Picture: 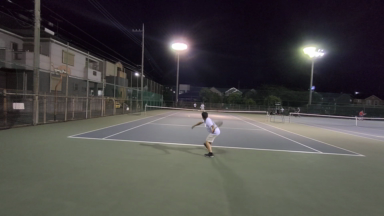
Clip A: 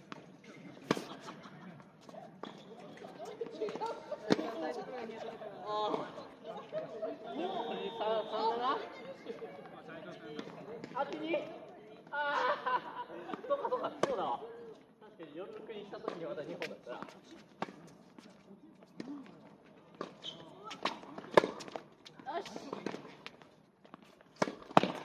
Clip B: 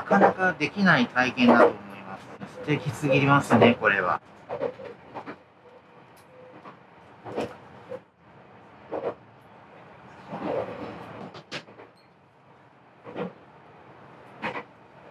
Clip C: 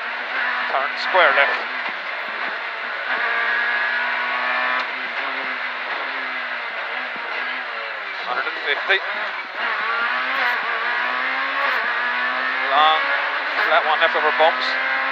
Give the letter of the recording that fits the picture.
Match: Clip A